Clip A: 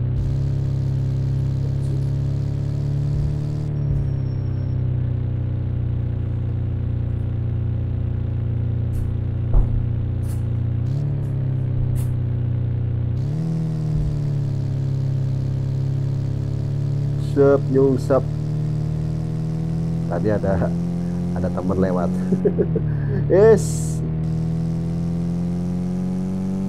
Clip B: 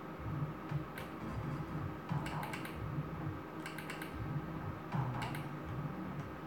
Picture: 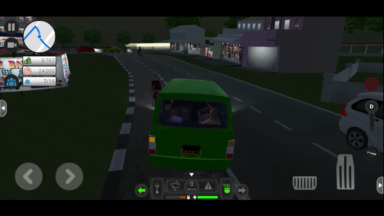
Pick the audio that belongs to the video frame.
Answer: A